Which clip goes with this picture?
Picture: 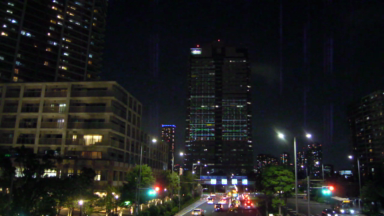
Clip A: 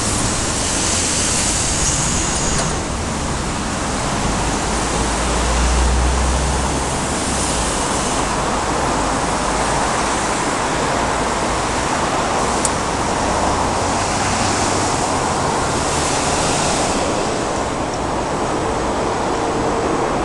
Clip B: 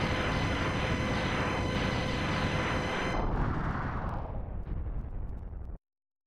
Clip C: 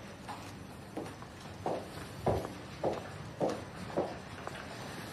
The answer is A